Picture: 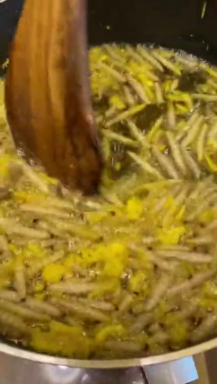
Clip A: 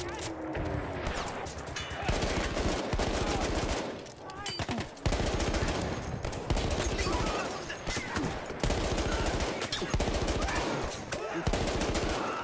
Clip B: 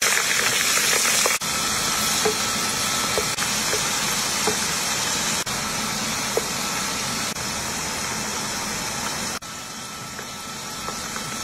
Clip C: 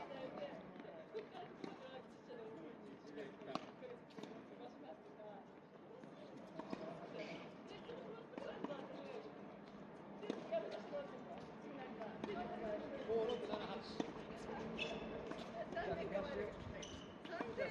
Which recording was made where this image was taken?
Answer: B